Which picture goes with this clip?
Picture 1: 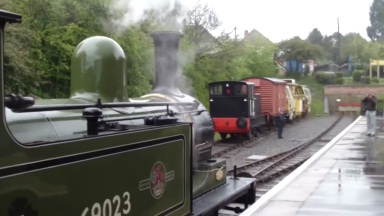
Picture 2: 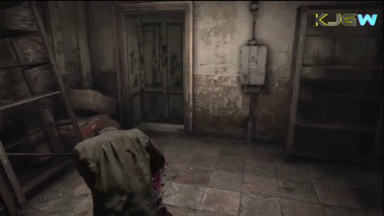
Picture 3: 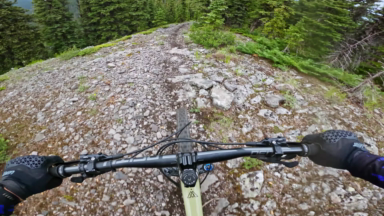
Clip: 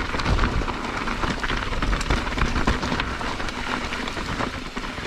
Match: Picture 3